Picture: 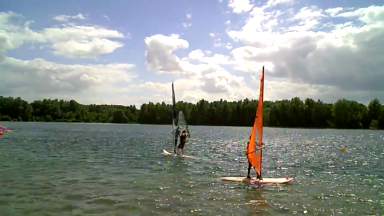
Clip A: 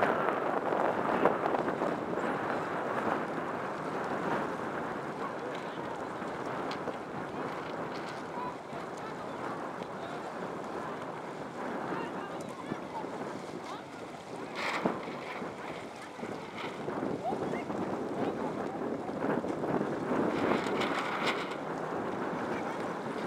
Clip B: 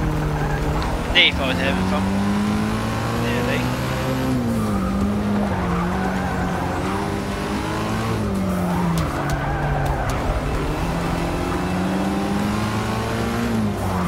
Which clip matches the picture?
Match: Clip A